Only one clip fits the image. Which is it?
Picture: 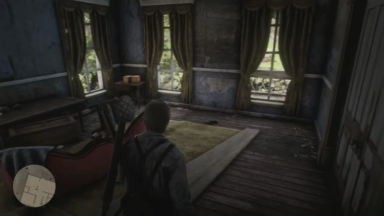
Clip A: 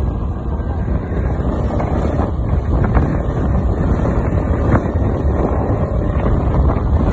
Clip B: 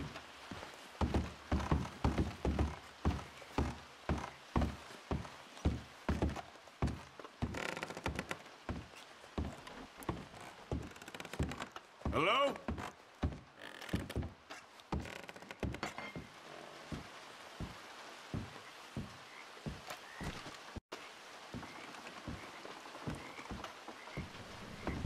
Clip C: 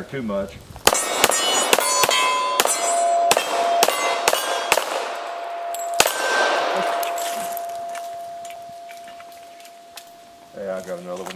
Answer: B